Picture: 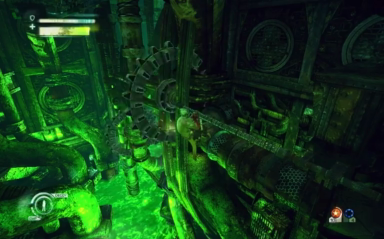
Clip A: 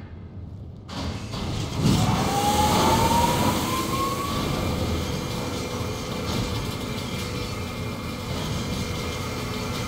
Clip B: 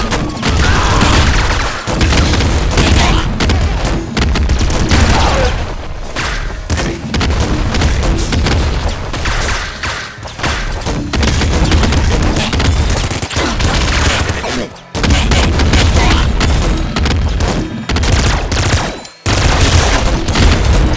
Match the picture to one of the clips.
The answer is A